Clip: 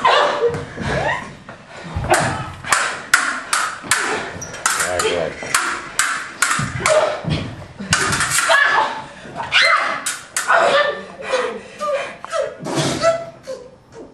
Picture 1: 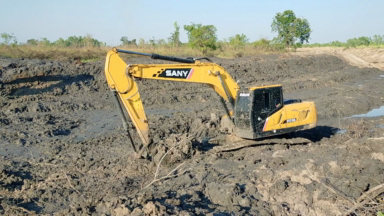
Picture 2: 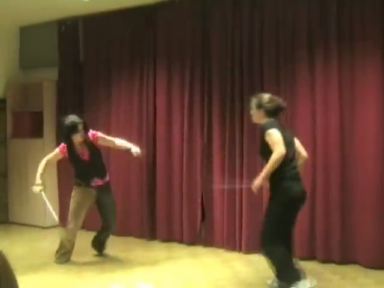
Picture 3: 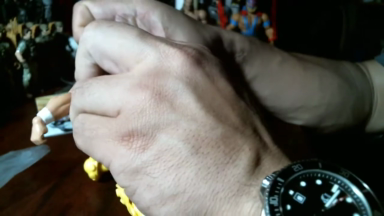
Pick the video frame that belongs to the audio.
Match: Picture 2